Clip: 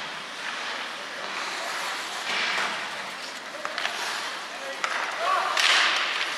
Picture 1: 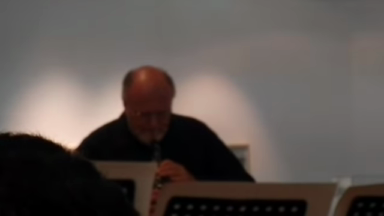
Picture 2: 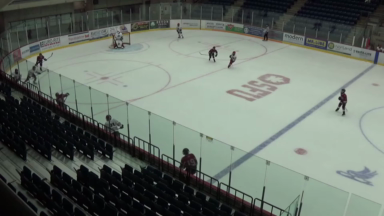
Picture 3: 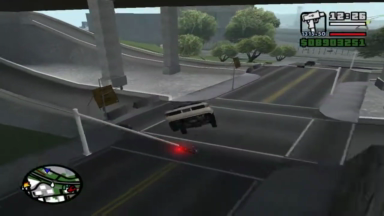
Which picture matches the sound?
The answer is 2